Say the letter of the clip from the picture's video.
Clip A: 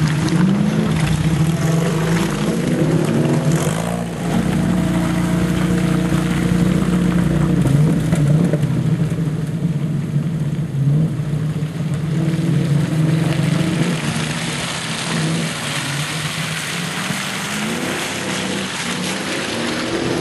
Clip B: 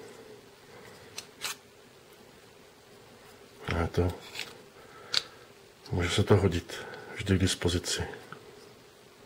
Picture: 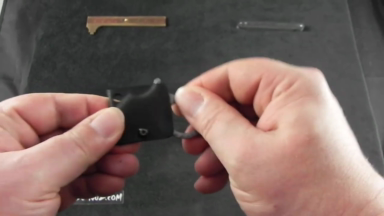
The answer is B